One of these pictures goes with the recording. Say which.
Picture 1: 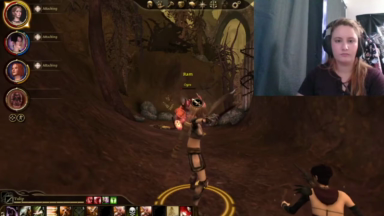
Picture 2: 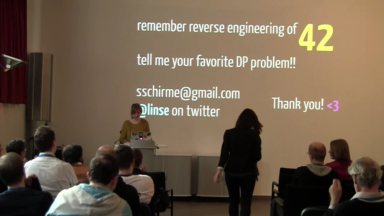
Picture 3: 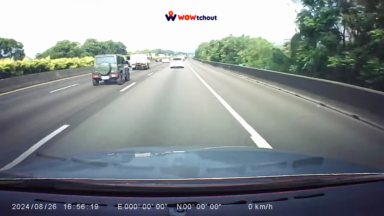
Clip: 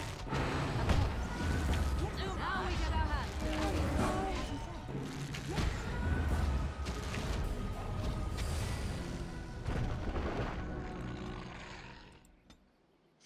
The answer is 1